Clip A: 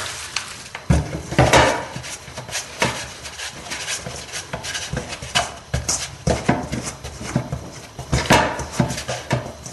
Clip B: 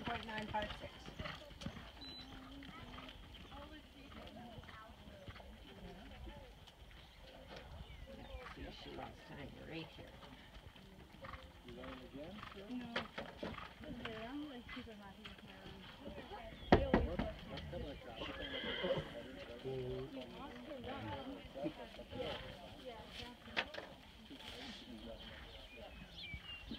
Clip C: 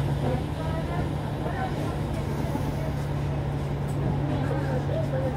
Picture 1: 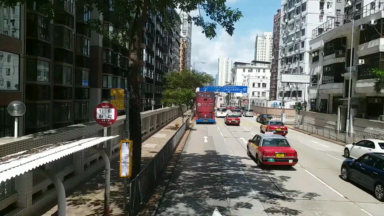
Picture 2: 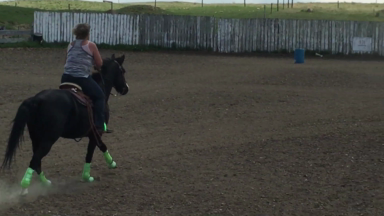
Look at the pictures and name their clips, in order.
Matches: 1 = C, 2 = B